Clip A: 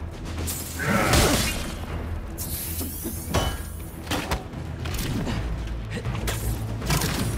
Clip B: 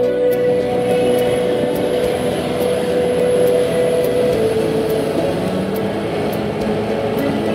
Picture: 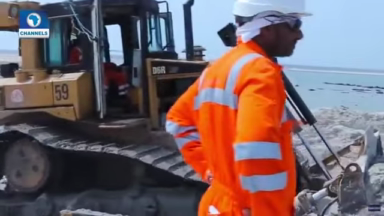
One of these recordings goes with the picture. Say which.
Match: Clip B